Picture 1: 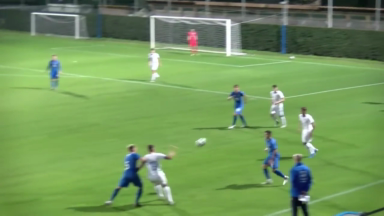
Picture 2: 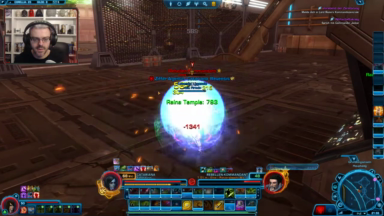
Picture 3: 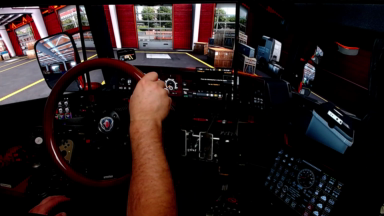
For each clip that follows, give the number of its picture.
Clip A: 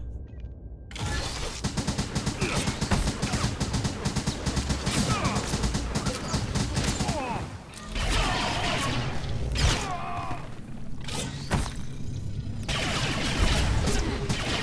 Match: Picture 2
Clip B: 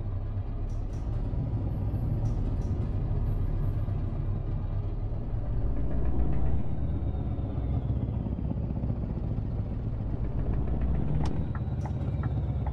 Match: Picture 3